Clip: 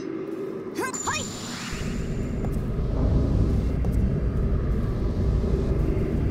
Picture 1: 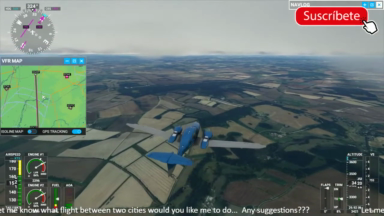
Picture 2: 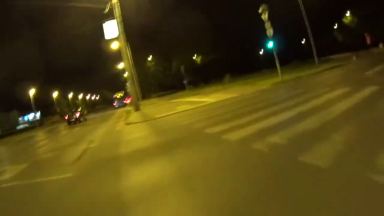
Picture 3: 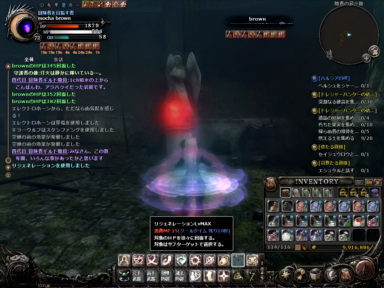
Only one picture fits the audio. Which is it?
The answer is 3